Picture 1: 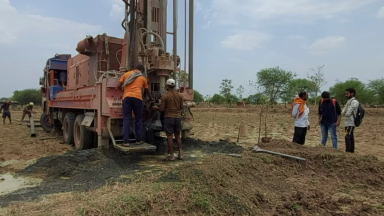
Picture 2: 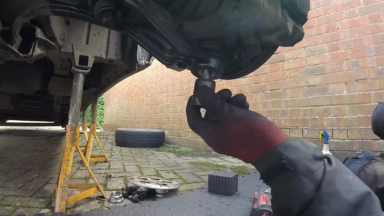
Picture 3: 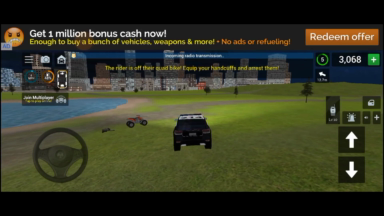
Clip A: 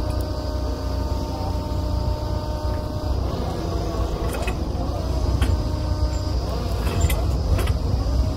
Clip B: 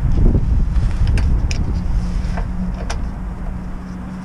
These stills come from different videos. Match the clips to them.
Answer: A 1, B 2